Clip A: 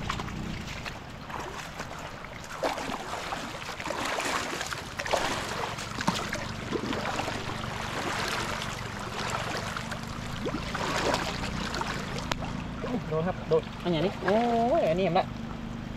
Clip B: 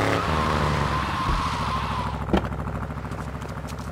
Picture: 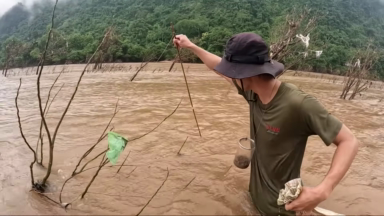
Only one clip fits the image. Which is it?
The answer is A